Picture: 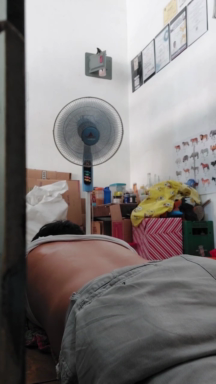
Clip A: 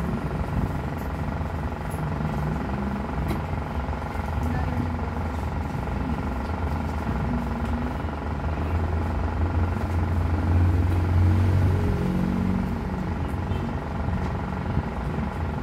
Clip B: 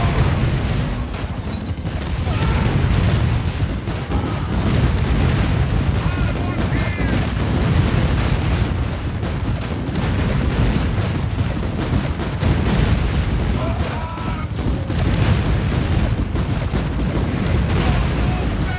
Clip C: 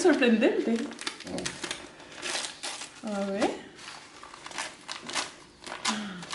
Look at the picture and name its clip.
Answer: A